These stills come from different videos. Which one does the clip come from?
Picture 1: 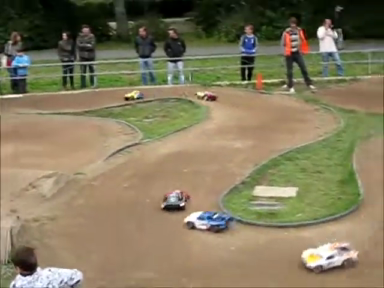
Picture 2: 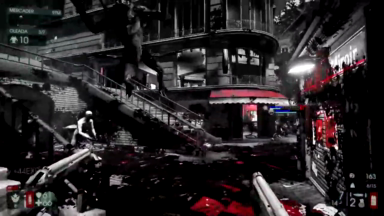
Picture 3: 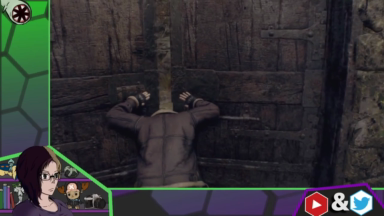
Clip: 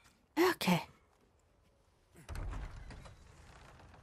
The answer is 3